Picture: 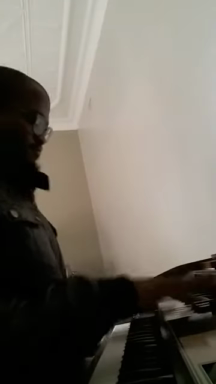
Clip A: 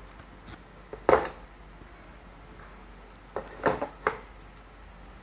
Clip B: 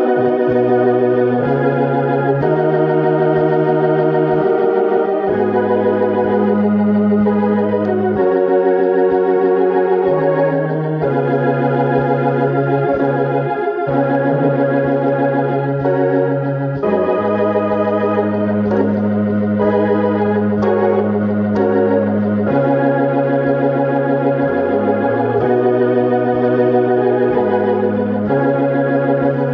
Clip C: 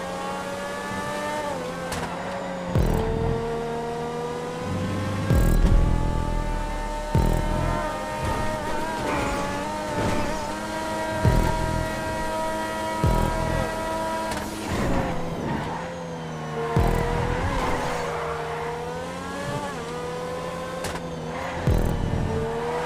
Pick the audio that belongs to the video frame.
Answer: B